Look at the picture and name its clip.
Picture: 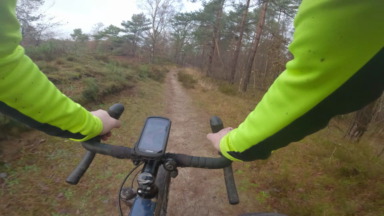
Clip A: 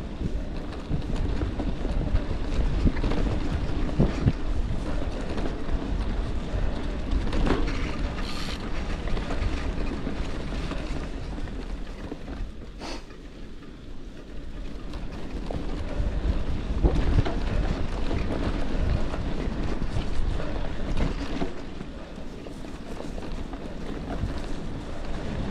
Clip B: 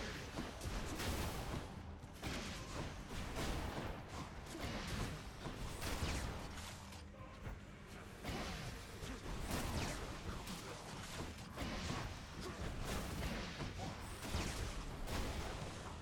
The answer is A